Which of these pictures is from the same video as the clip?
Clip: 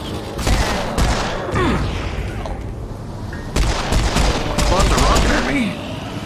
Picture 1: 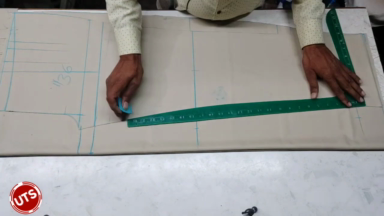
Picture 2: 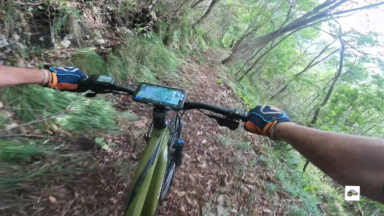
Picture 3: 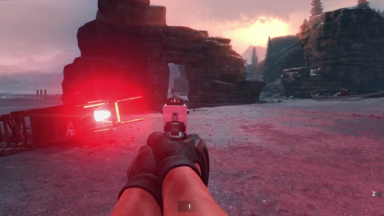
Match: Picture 3